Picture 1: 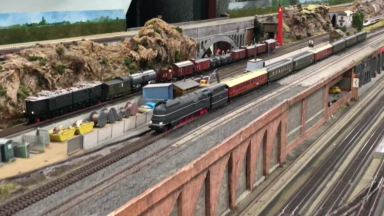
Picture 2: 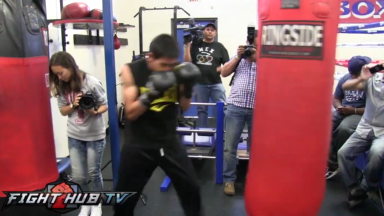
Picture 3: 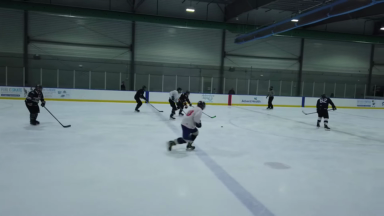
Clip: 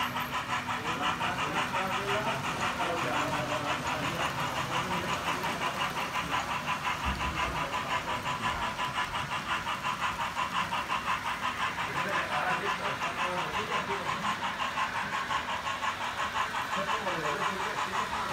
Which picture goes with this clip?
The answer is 1